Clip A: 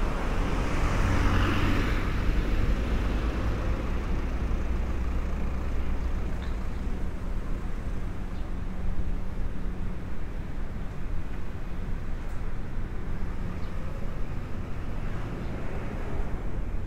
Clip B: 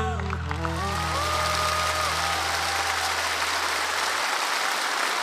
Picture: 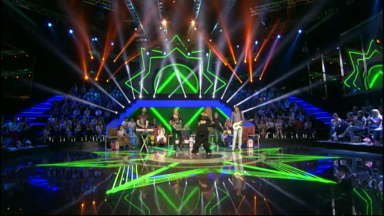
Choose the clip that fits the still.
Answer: B